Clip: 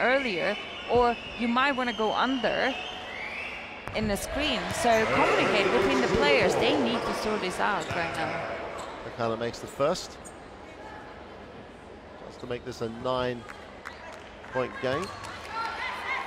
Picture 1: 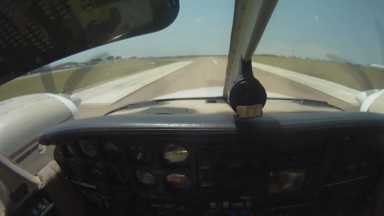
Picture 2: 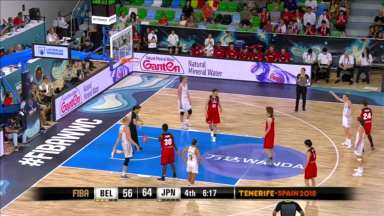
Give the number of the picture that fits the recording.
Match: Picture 2